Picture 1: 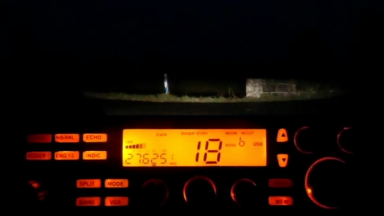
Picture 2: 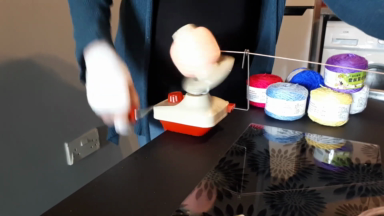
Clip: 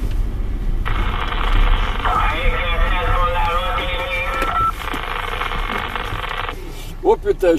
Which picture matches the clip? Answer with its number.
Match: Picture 1